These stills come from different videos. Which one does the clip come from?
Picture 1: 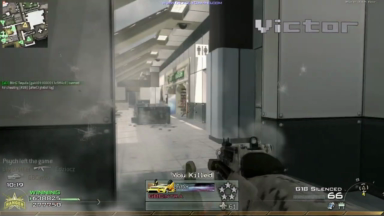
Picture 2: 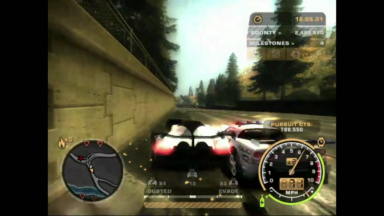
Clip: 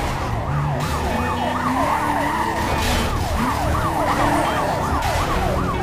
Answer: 2